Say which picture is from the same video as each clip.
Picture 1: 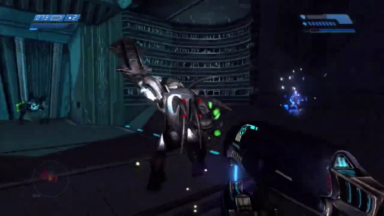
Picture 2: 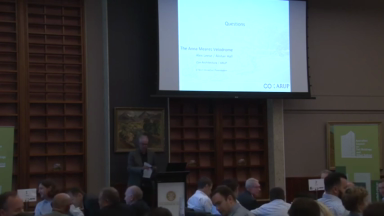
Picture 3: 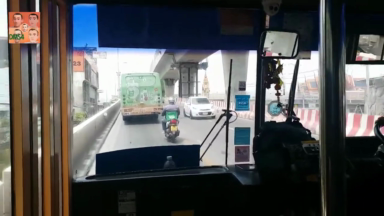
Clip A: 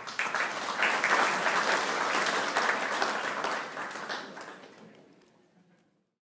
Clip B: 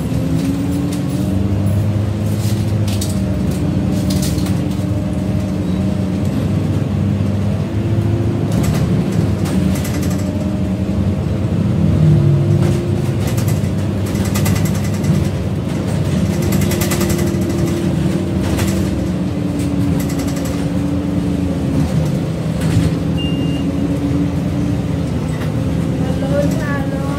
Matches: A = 2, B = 3